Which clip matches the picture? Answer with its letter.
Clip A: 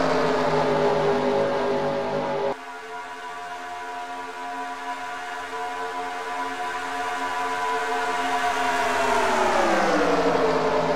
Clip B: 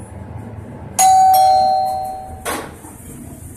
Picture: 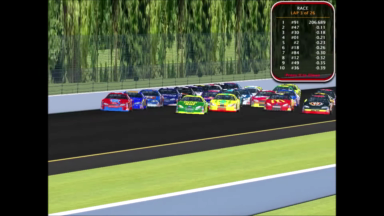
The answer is A